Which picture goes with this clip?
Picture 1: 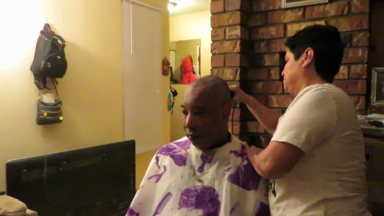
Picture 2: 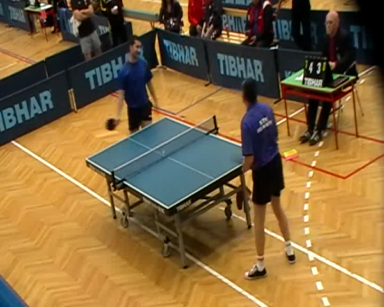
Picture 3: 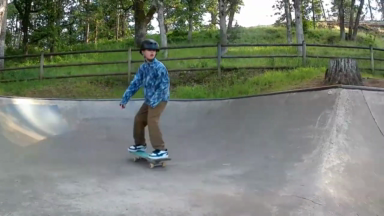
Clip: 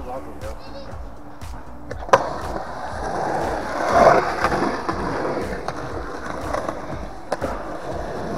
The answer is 3